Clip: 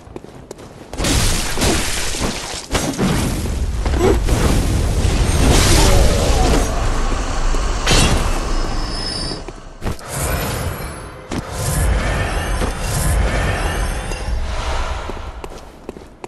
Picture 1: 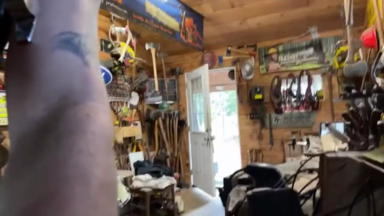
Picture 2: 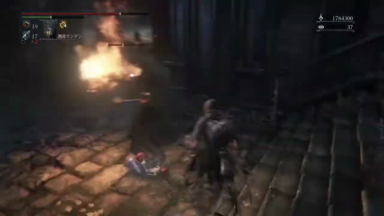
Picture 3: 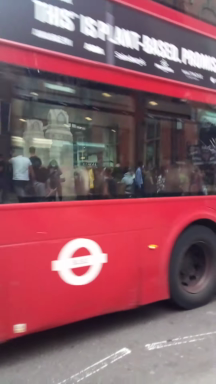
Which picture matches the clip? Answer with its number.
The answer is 2